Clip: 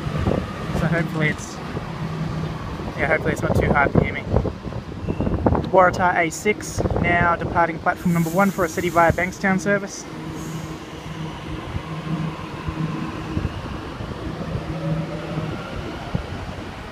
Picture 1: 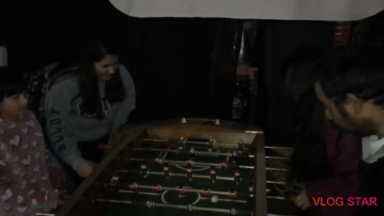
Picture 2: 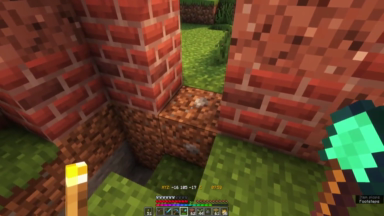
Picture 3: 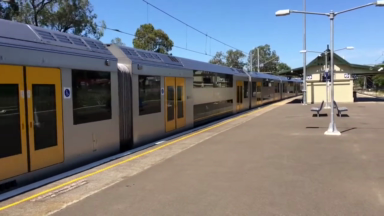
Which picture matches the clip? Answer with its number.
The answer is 3